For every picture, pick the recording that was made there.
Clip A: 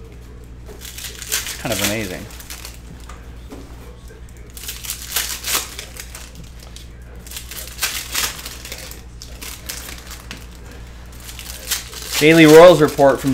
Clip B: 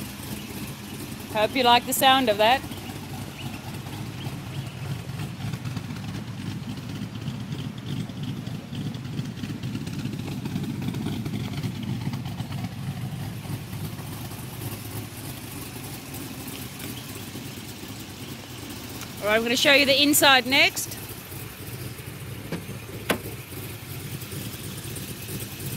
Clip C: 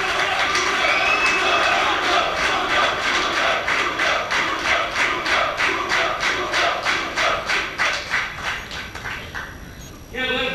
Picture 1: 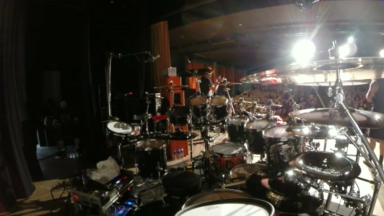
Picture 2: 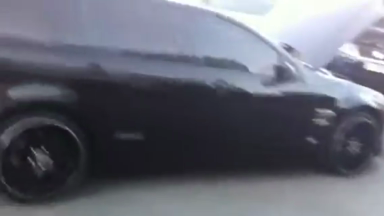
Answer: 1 C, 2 B